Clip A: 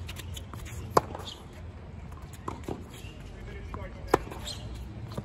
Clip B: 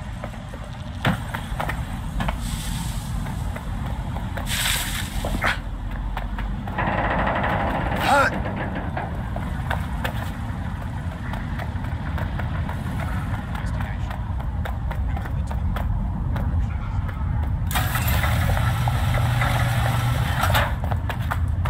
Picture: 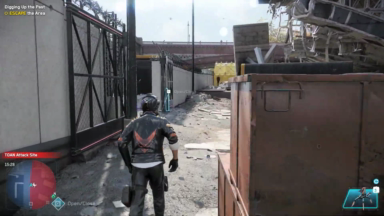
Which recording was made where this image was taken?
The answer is B